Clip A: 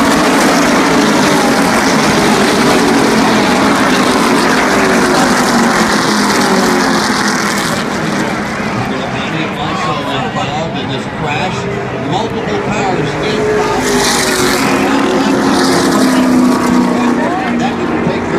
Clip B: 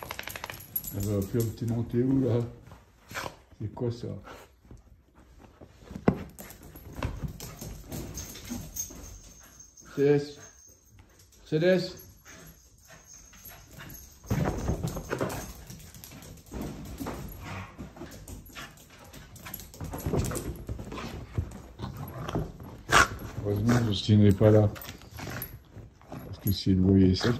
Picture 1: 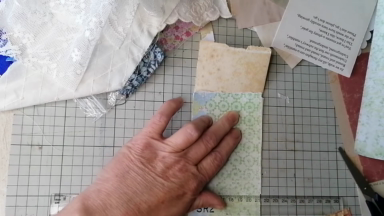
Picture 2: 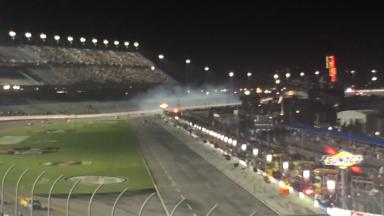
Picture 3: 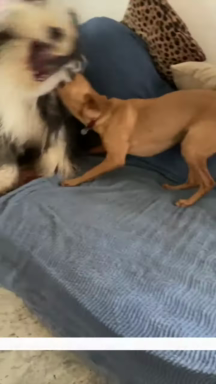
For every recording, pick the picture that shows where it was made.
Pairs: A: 2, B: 3